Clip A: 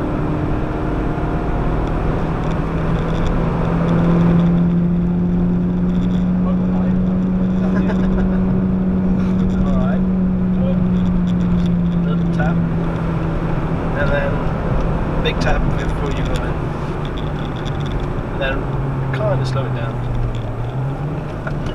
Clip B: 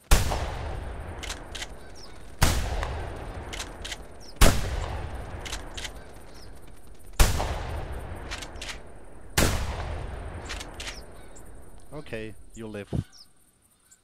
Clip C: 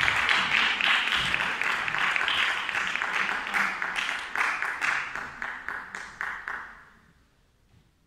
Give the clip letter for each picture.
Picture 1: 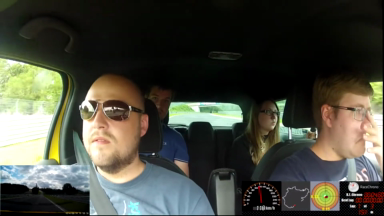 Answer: A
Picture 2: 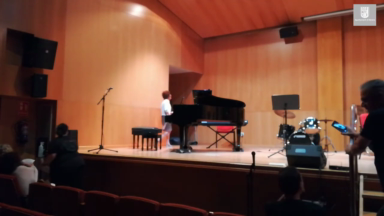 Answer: C